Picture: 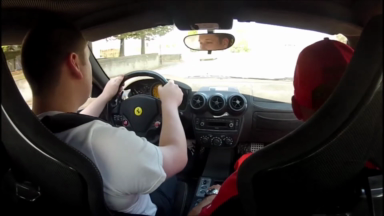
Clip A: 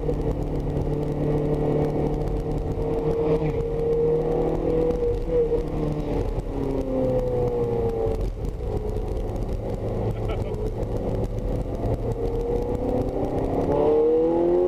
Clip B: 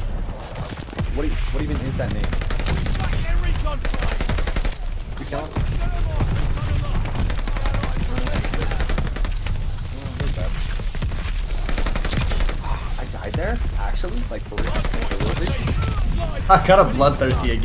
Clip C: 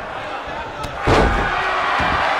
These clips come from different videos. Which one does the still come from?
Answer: A